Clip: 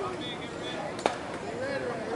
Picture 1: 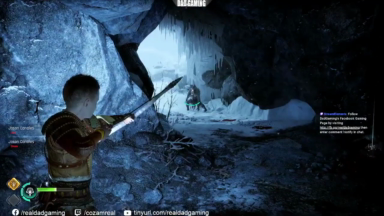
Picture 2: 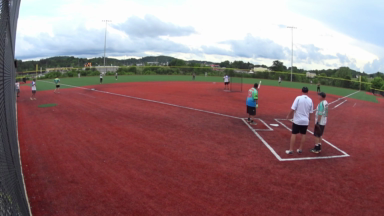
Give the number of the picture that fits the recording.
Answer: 2